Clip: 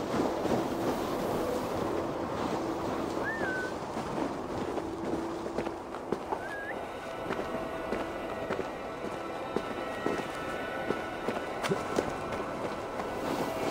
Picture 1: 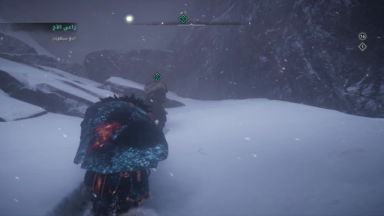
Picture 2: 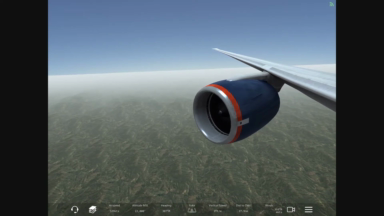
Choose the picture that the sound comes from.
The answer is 1